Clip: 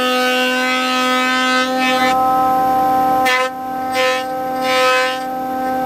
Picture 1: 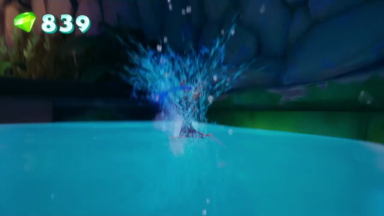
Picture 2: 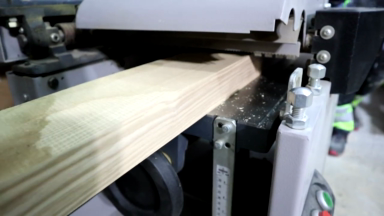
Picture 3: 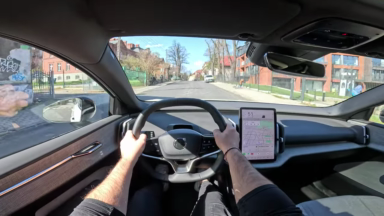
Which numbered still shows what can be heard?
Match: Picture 2